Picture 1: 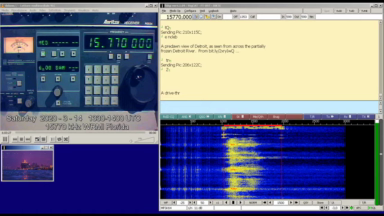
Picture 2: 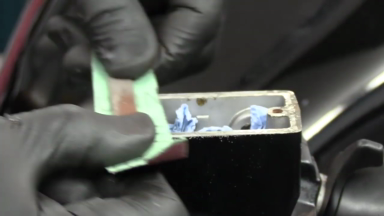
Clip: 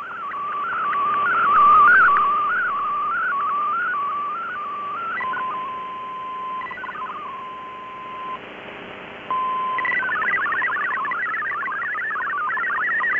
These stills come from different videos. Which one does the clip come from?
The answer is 1